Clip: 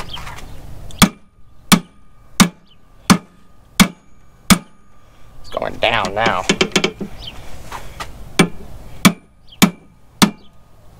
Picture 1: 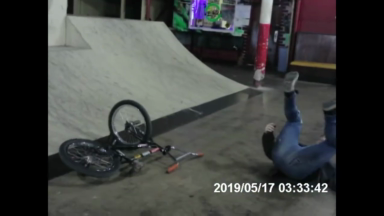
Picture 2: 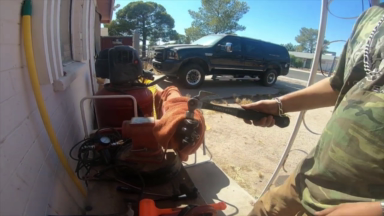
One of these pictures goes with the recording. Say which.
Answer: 2